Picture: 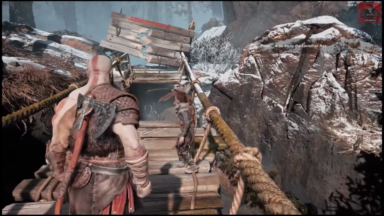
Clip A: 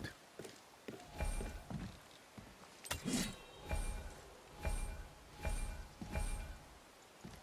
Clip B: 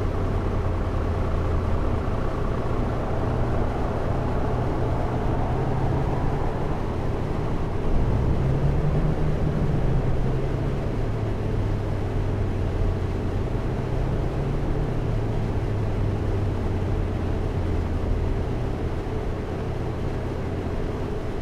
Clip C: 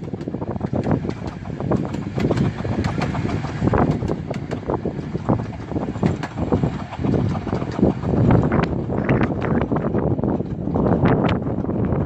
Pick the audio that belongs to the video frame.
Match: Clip A